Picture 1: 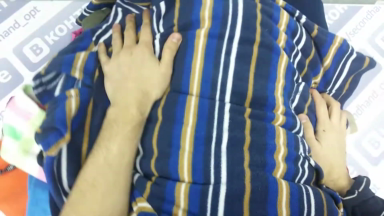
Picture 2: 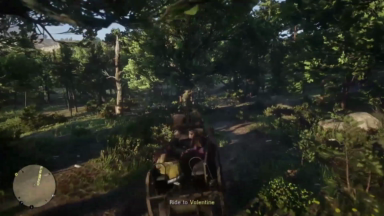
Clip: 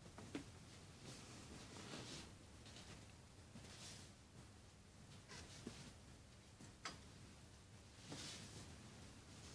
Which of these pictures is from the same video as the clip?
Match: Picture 1